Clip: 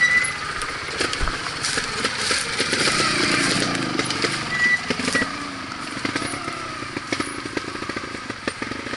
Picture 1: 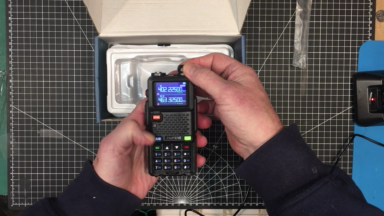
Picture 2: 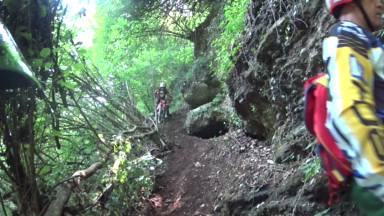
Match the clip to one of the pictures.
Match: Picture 2